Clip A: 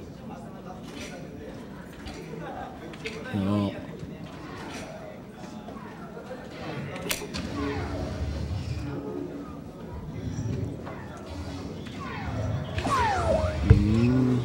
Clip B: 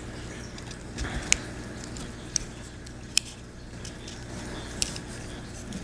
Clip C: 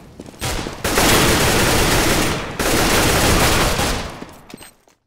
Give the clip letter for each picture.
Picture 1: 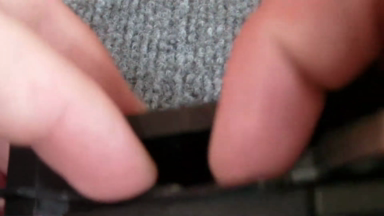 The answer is B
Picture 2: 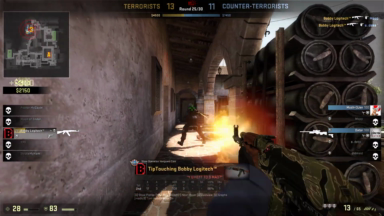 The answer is C